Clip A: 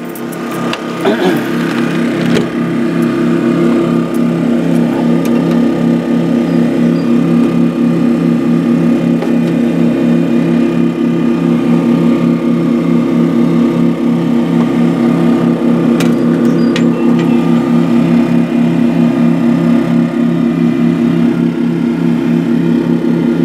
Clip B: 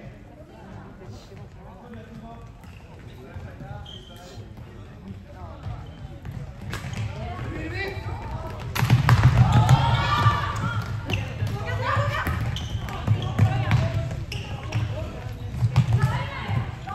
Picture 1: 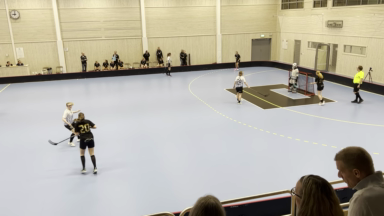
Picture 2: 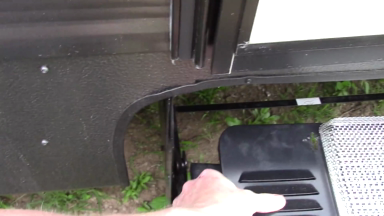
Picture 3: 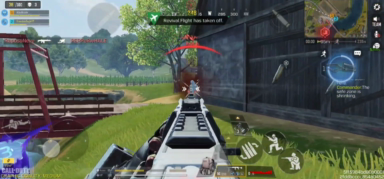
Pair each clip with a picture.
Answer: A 2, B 1